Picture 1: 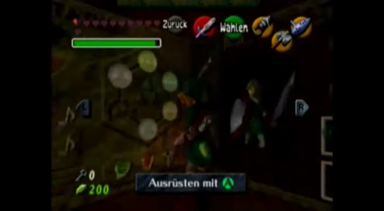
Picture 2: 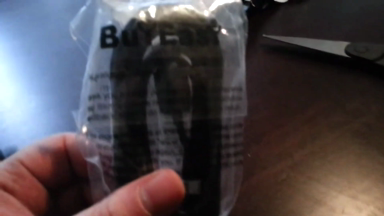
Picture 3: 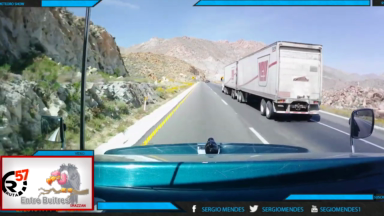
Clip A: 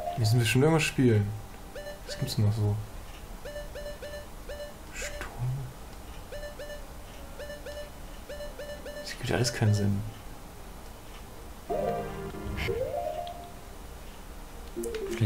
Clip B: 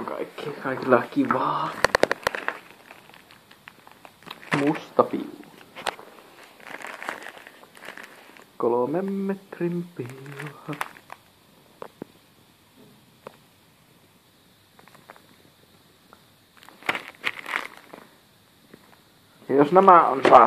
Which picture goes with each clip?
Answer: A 1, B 2